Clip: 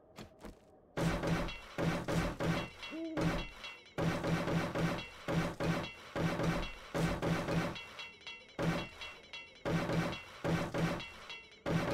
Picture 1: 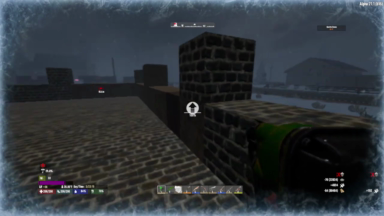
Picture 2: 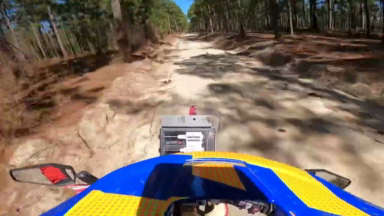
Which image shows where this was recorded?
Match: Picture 1